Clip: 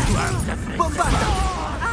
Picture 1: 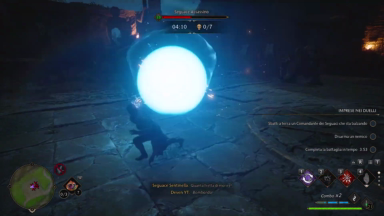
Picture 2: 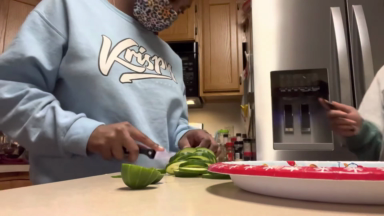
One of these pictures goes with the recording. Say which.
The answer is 1